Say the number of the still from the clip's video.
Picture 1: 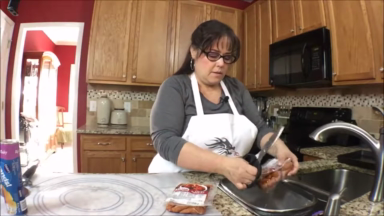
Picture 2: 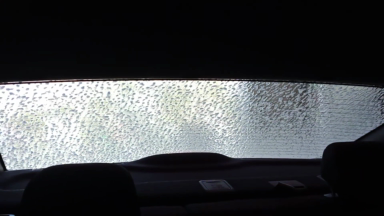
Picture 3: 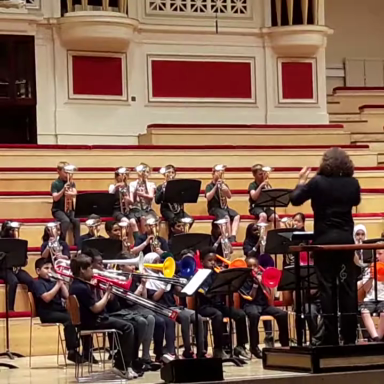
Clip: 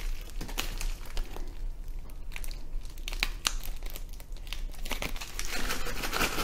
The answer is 1